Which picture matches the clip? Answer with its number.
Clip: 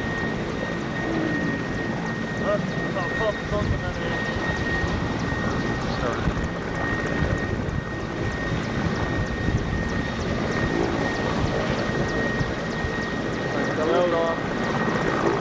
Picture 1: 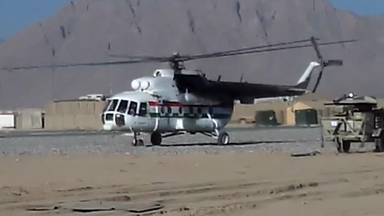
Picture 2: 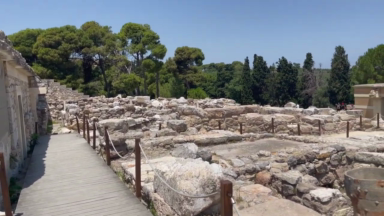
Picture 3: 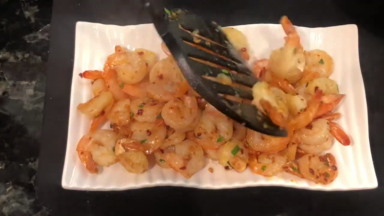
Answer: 1